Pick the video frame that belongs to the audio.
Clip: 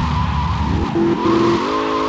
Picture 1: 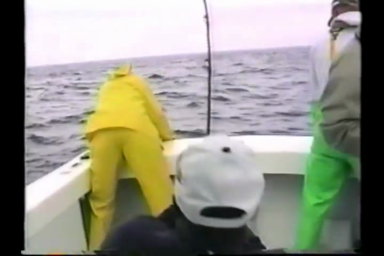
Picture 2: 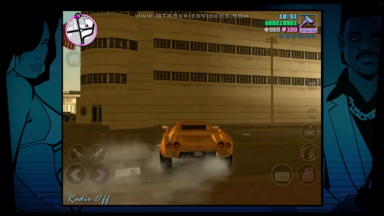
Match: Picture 2